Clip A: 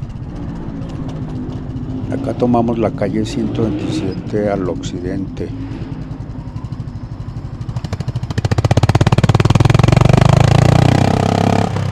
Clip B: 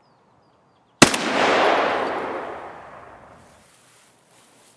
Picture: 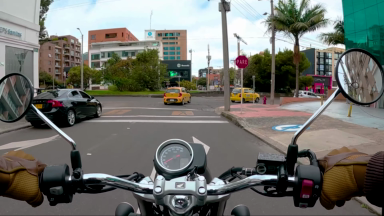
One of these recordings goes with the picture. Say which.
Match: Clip A